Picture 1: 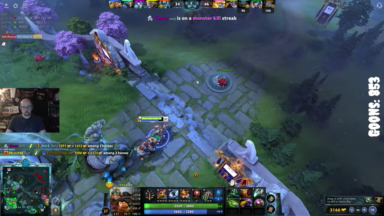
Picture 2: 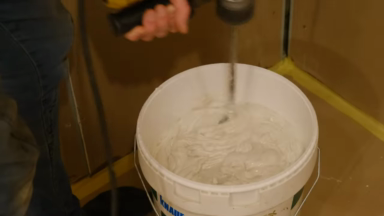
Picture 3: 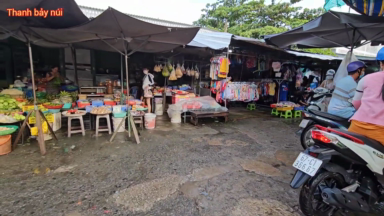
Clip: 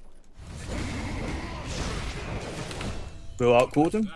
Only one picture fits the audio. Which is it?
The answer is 1